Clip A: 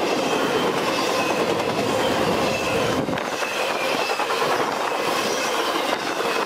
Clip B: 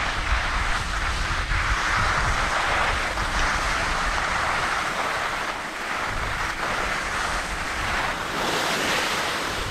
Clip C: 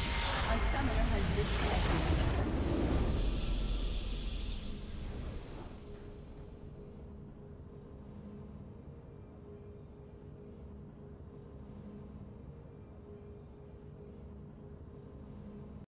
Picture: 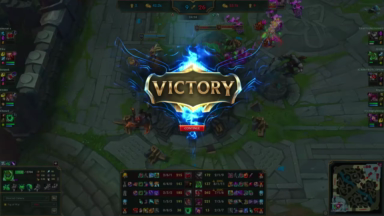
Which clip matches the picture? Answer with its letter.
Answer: C